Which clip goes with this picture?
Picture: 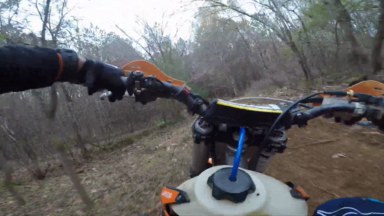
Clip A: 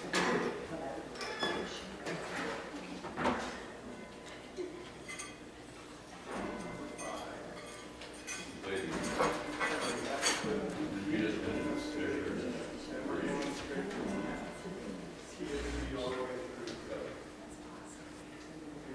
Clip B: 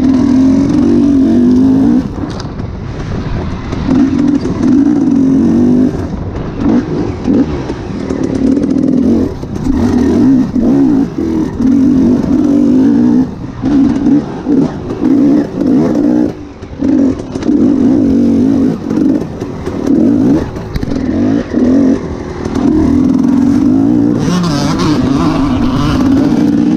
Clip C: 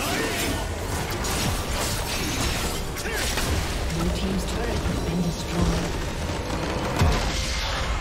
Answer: B